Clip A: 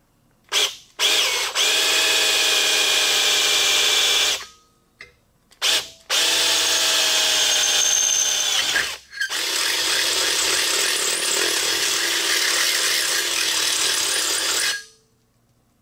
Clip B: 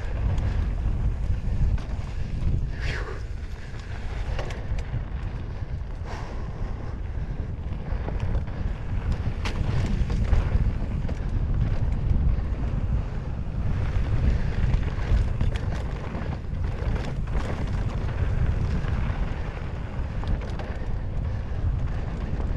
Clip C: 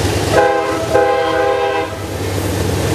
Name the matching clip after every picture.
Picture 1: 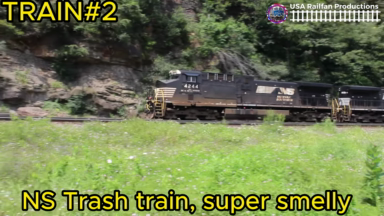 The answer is C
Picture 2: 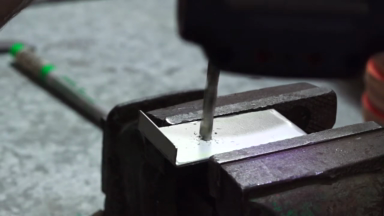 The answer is A